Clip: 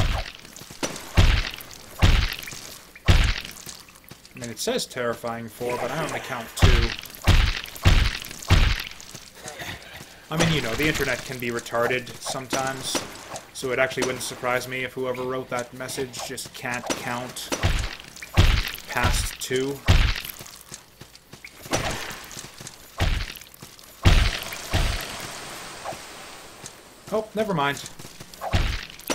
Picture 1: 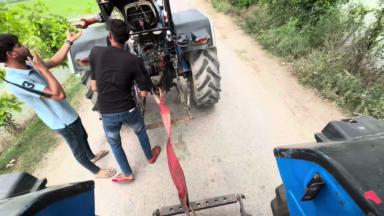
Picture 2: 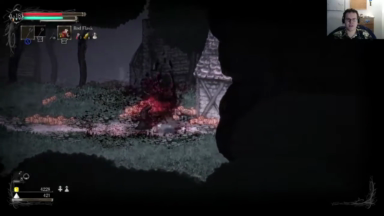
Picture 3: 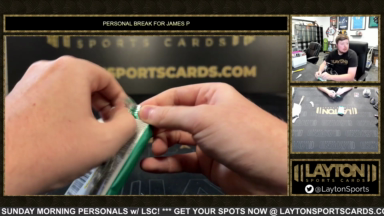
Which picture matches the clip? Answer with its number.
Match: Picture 2